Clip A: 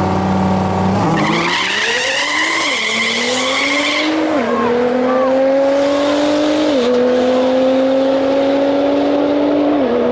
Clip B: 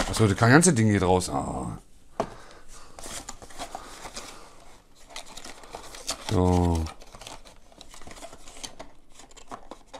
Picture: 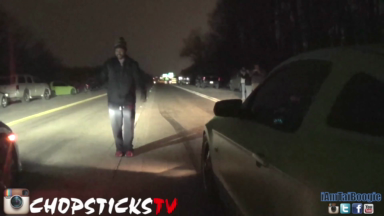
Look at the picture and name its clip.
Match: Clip A